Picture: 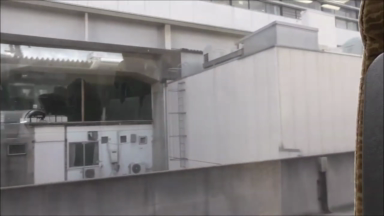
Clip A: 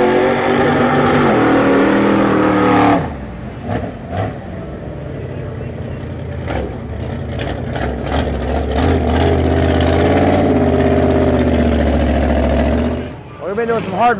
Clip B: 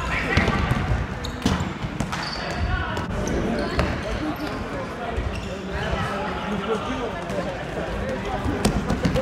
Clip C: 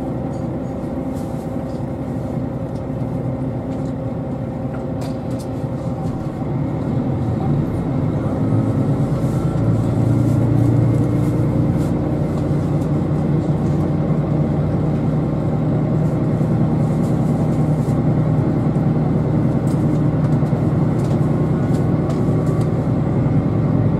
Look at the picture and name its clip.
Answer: C